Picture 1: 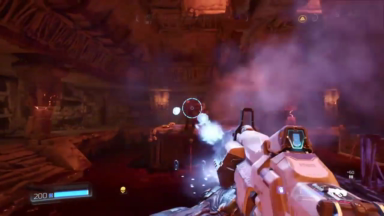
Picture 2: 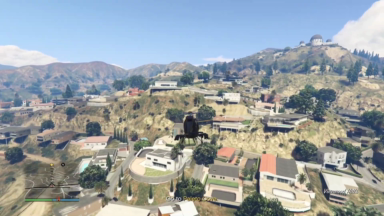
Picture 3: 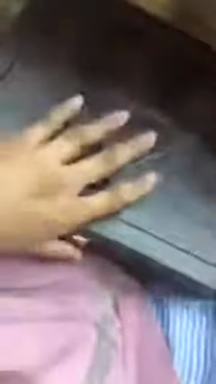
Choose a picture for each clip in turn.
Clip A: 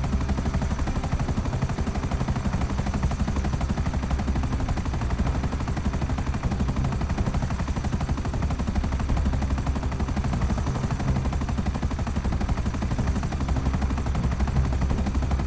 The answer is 2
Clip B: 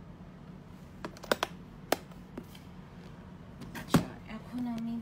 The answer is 3